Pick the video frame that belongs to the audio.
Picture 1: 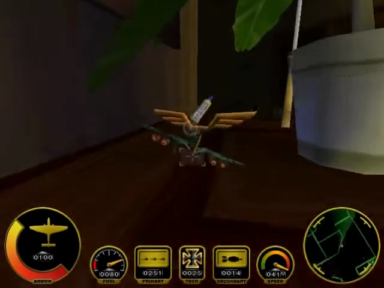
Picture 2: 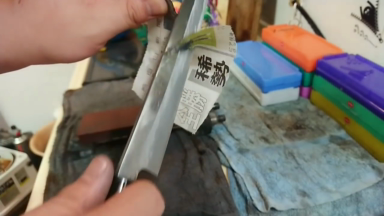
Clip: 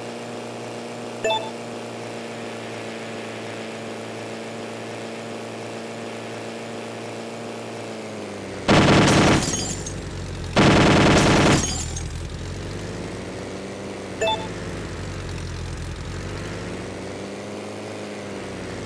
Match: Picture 1